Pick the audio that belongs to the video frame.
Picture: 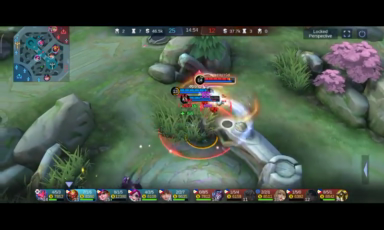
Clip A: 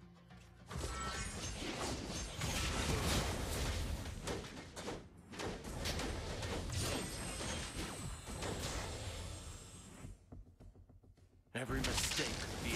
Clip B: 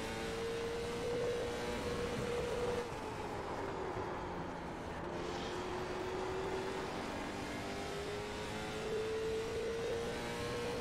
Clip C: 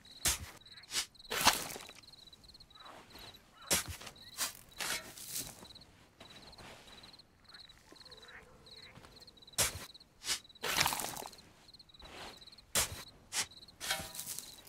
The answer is A